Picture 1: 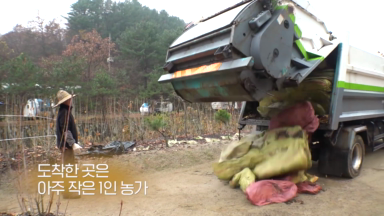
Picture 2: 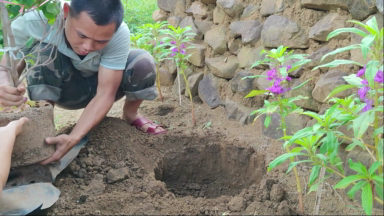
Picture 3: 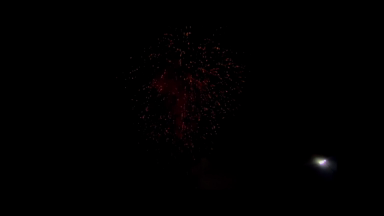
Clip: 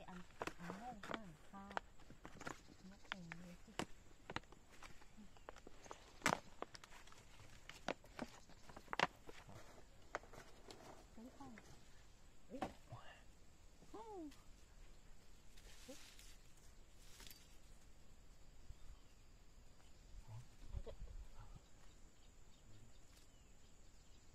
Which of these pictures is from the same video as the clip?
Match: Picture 2